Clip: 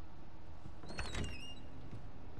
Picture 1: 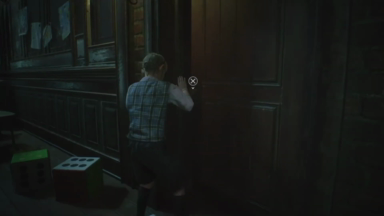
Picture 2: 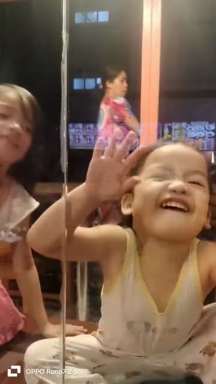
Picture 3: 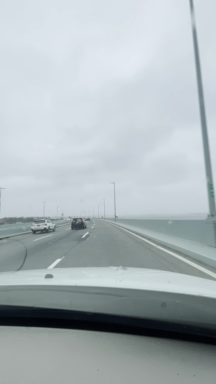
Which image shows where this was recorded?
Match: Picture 1